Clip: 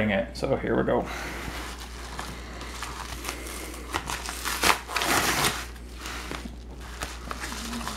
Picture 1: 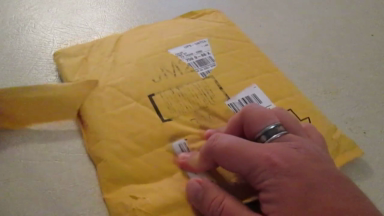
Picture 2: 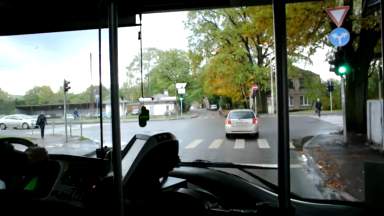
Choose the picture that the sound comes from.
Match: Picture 1